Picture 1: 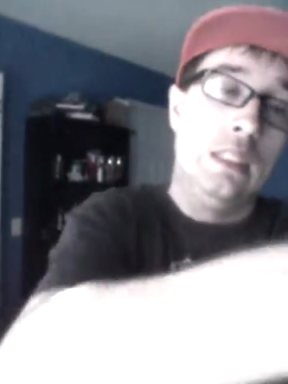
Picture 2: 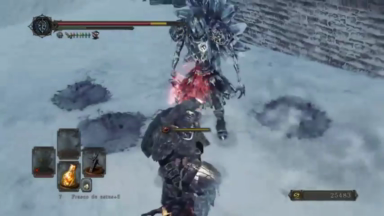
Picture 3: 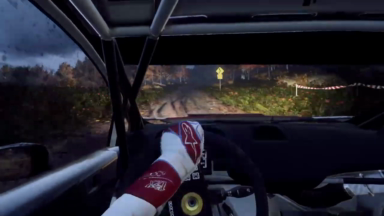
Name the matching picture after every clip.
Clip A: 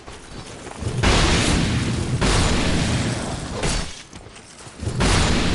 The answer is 2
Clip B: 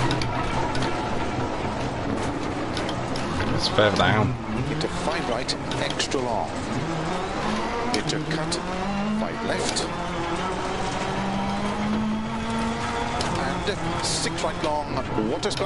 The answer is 3